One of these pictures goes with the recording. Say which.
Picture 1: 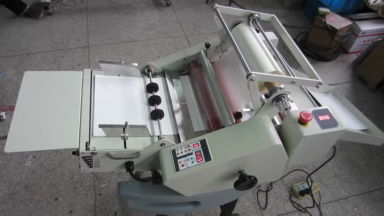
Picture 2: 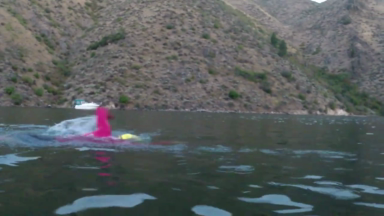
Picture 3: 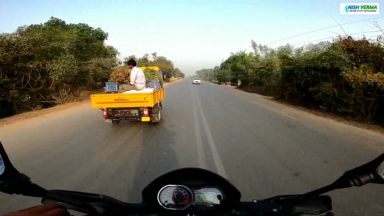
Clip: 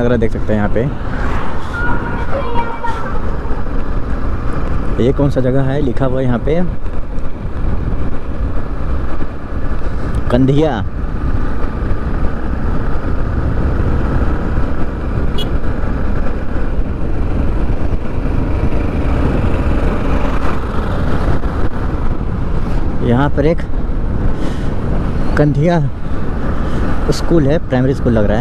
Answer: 3